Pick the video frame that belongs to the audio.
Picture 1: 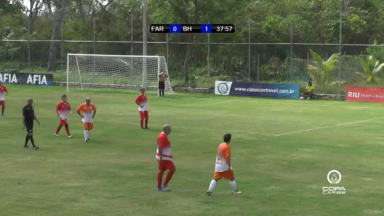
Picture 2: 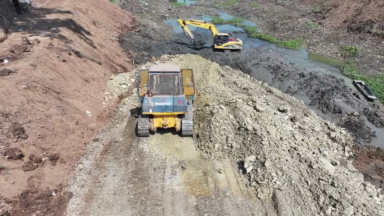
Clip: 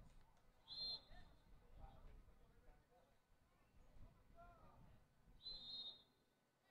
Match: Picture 1